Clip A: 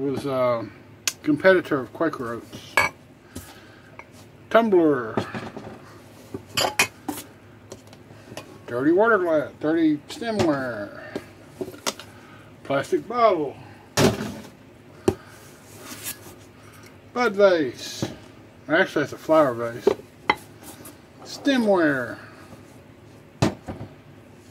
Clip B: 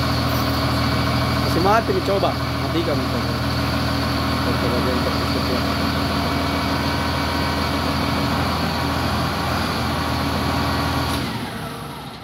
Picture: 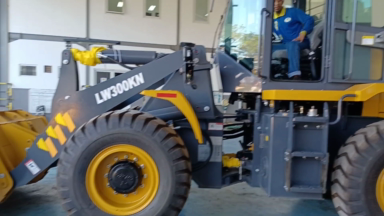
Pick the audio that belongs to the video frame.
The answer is B